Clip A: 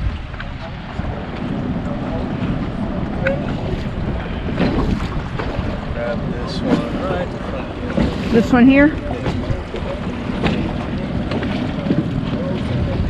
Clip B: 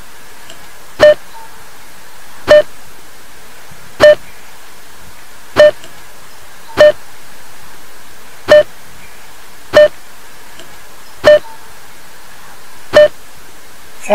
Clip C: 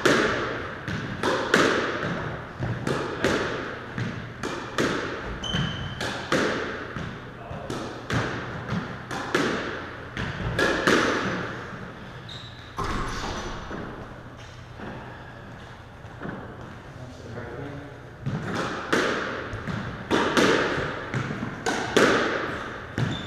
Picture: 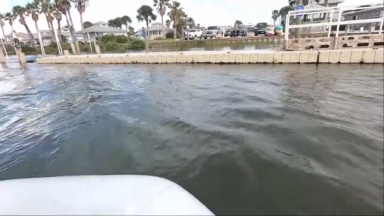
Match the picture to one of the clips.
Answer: A